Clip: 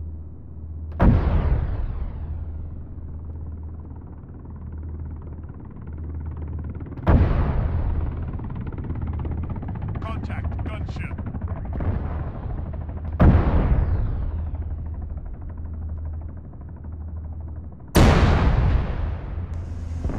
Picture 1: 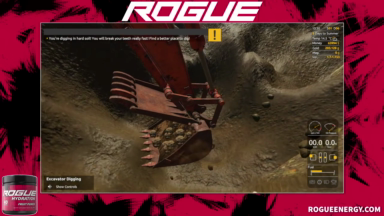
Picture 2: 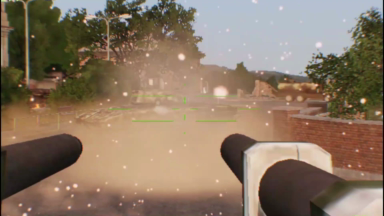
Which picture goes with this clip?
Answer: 2